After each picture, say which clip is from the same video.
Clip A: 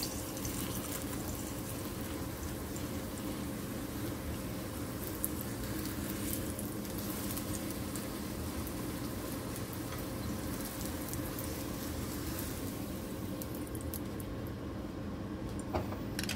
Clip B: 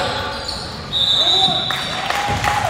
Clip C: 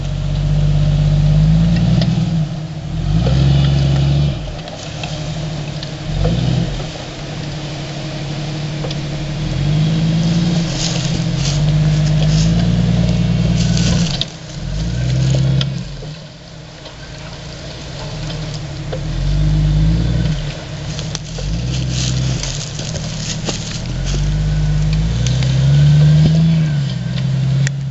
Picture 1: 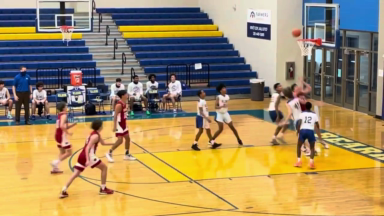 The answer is B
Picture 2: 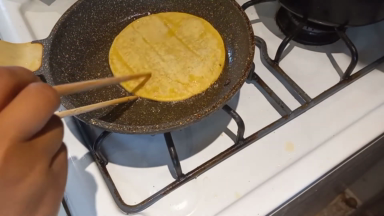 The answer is A